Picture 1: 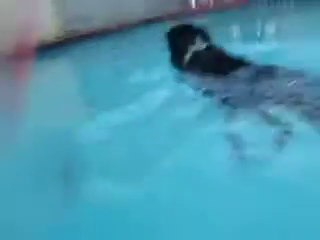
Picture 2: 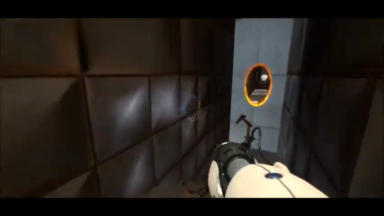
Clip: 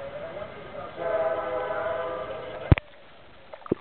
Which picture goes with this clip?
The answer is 1